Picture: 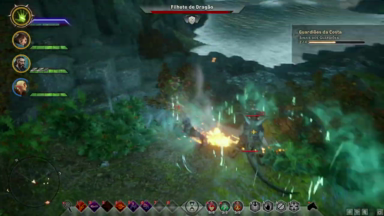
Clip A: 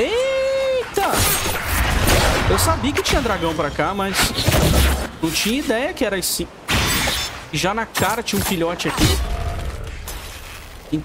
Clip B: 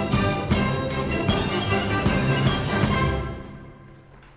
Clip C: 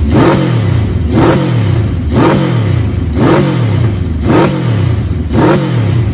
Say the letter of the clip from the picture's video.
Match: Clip A